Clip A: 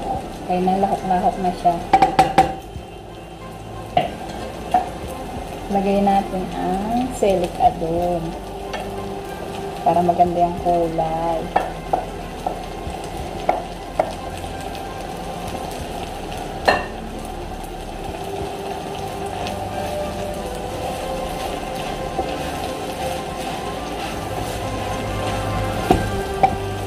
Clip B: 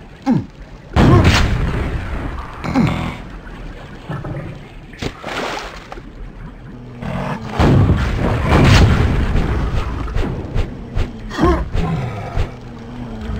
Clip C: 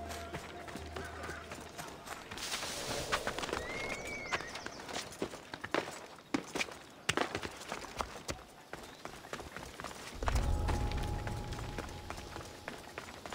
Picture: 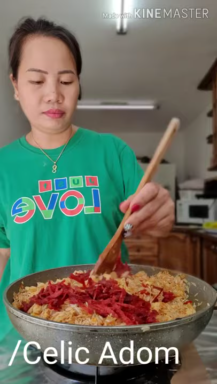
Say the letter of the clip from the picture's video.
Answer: A